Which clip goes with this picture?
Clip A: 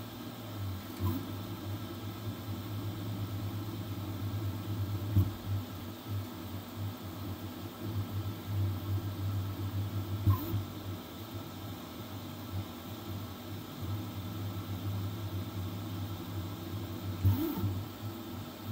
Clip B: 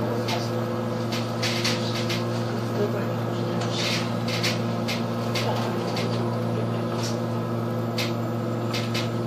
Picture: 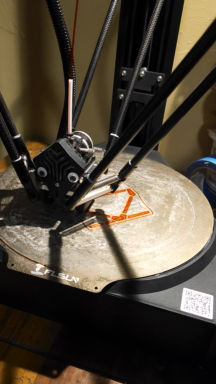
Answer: A